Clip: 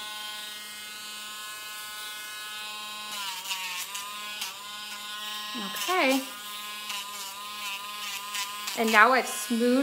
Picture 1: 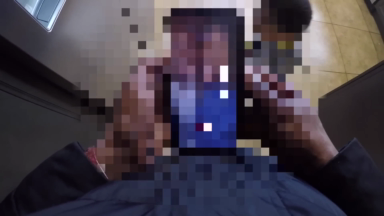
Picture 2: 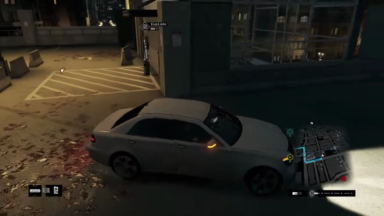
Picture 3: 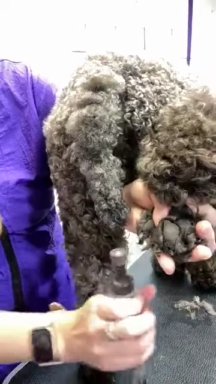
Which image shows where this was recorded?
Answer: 3